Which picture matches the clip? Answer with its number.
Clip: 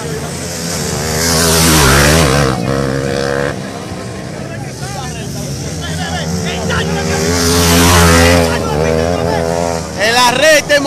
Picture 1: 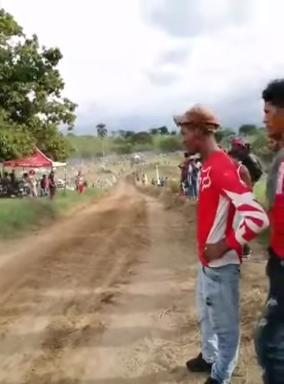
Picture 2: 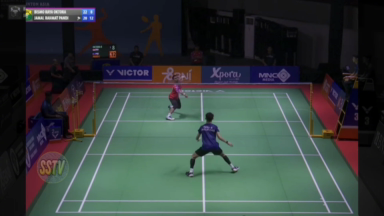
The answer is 1